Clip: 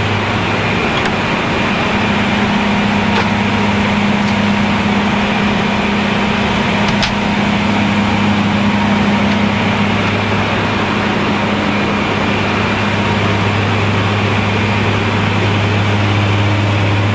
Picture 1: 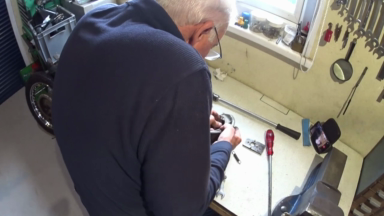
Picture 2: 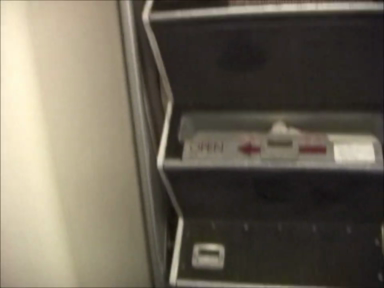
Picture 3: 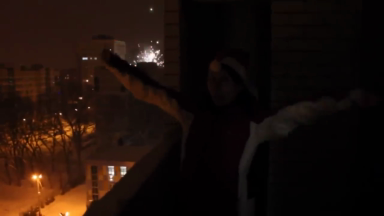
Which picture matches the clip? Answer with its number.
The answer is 2